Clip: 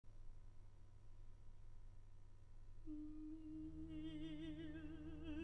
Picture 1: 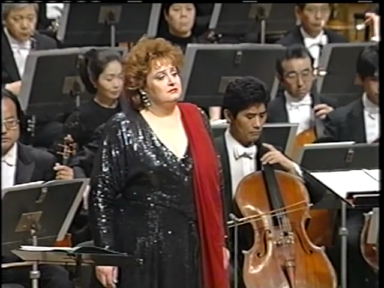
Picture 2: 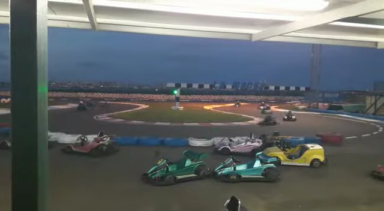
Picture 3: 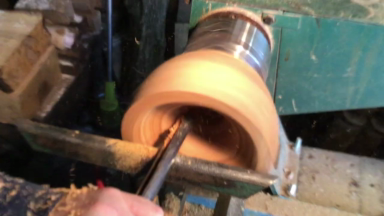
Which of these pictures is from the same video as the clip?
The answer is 1